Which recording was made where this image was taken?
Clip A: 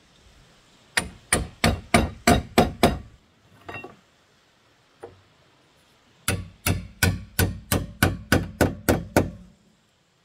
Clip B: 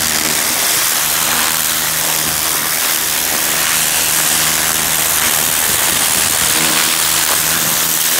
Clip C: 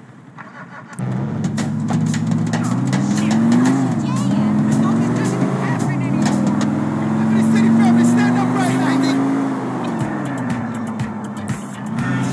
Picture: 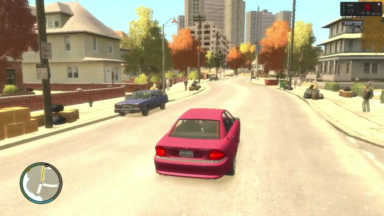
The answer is C